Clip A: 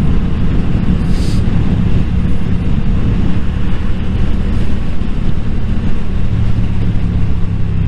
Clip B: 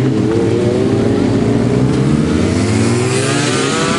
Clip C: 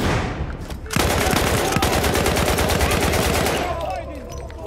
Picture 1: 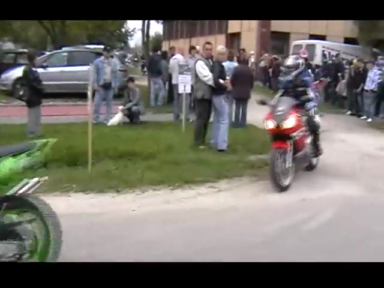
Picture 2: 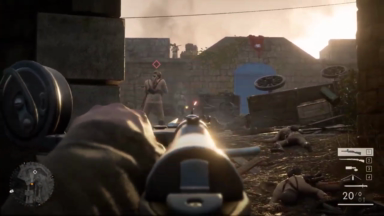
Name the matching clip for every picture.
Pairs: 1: B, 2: C